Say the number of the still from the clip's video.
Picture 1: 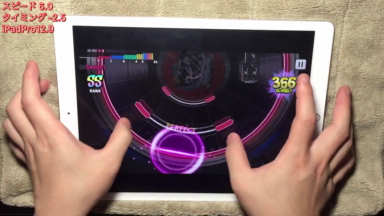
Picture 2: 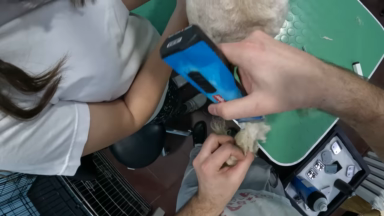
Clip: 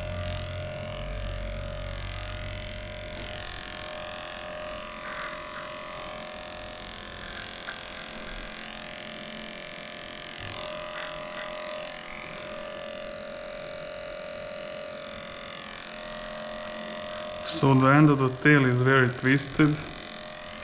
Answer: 2